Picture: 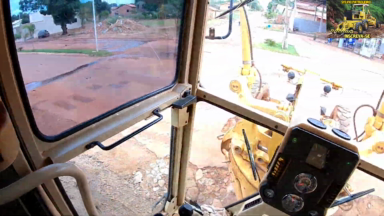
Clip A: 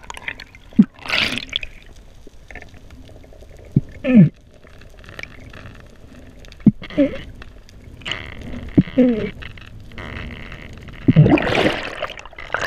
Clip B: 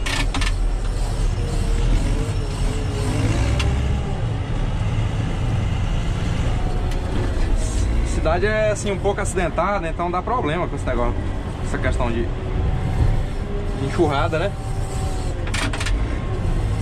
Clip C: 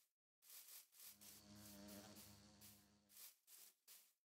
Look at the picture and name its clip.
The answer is B